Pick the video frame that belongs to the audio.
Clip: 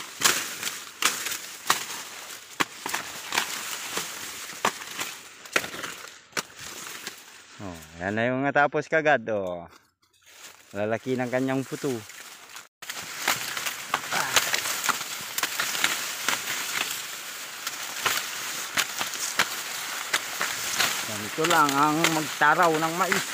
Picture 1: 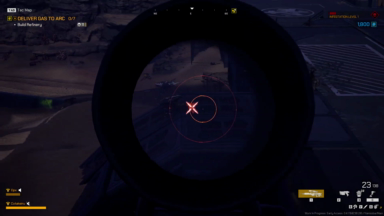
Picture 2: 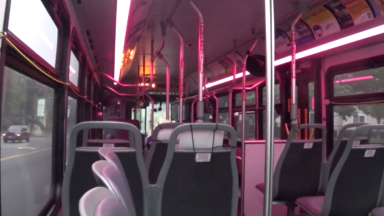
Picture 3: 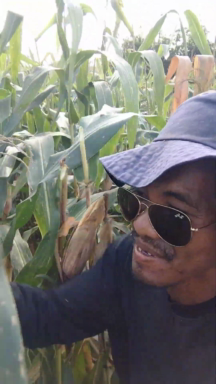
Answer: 3